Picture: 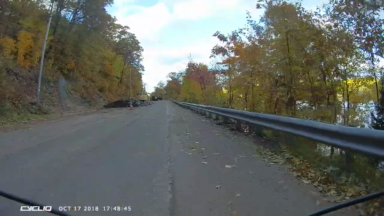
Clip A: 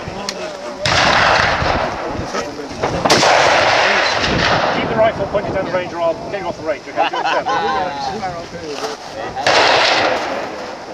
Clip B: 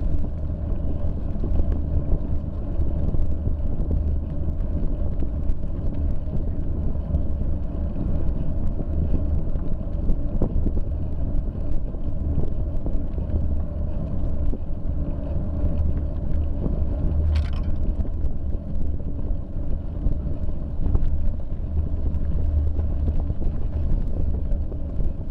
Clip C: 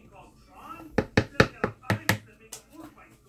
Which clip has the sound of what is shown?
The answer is B